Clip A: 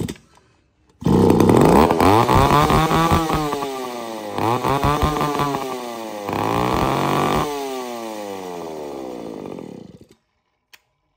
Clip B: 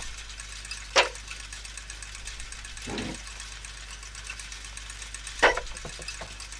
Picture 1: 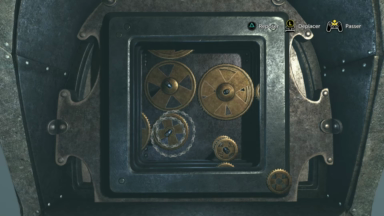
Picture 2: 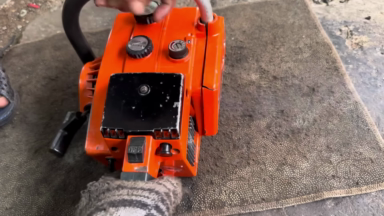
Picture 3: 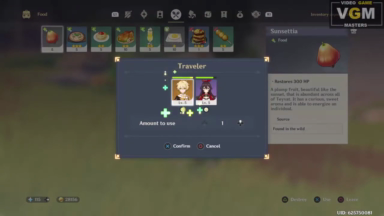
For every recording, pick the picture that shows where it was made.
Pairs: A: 2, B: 1